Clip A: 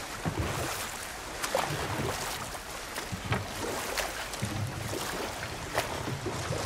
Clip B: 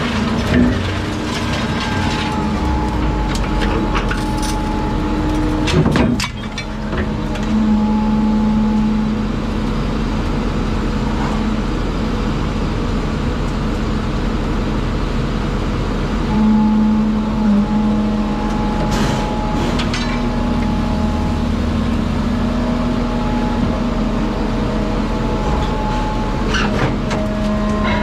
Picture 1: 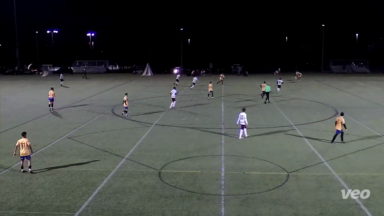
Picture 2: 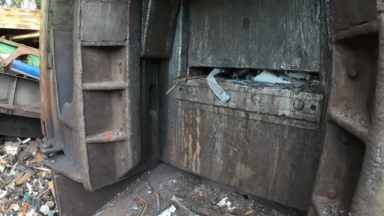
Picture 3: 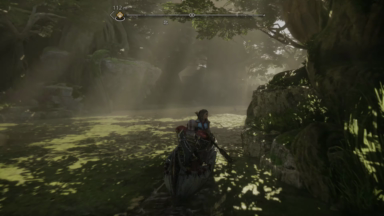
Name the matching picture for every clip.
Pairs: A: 3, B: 2